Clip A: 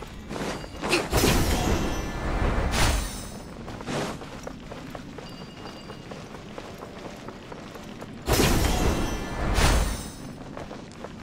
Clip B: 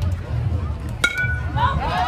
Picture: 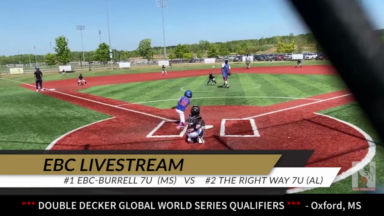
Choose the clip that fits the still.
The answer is B